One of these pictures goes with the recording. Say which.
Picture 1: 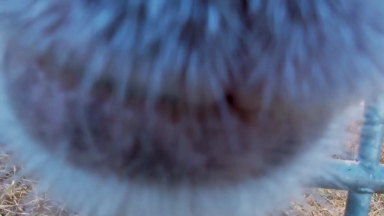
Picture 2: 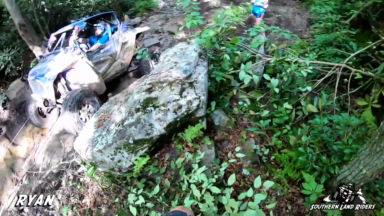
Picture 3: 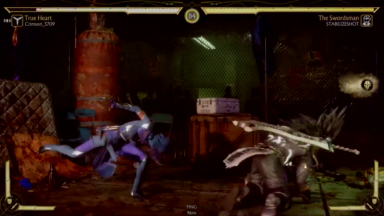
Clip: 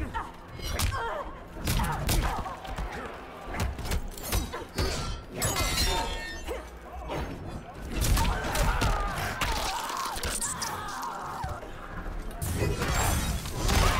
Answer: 3